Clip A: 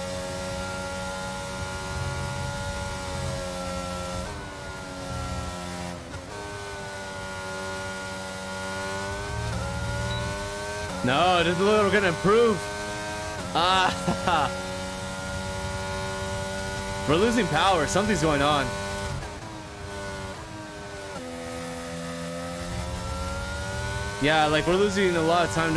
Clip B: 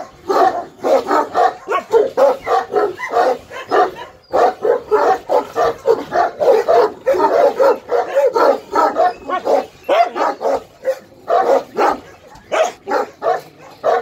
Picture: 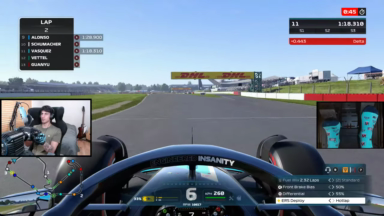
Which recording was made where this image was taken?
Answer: A